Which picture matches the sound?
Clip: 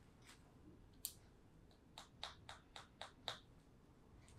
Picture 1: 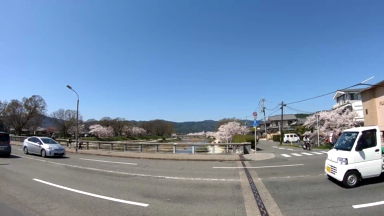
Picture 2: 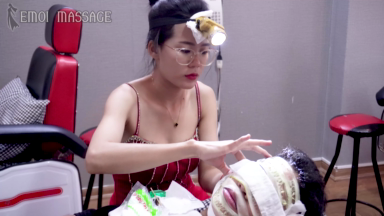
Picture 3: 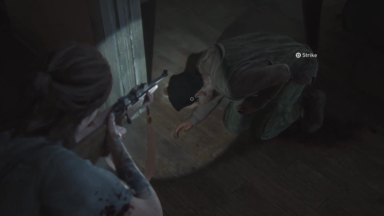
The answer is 2